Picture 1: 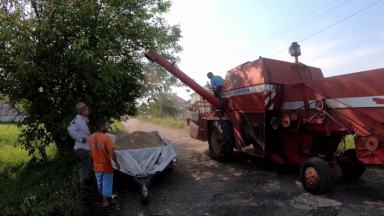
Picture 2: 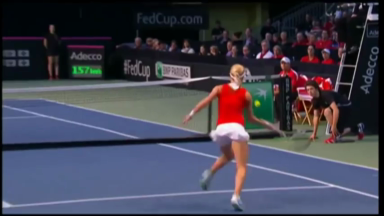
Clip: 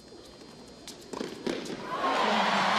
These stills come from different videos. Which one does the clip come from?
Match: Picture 2